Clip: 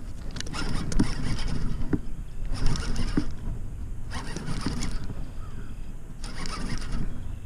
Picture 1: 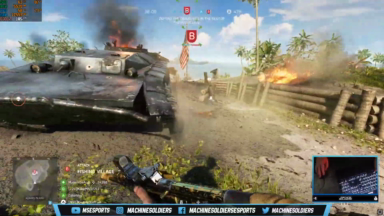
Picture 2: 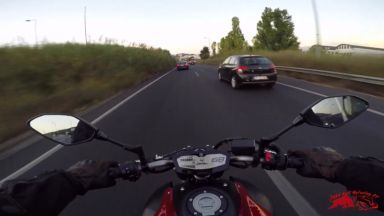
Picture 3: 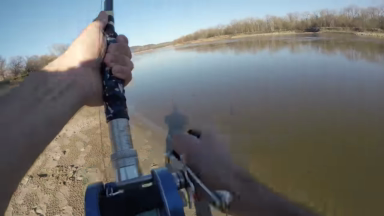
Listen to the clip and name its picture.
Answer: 3